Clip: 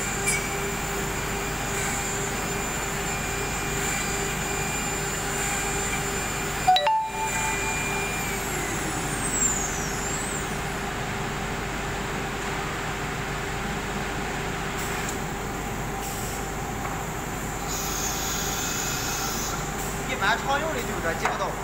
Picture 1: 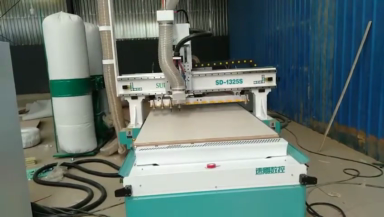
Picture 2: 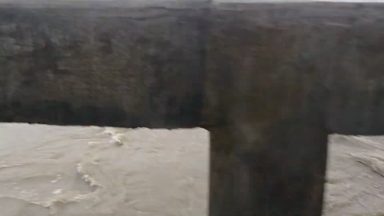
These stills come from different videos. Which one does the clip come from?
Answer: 1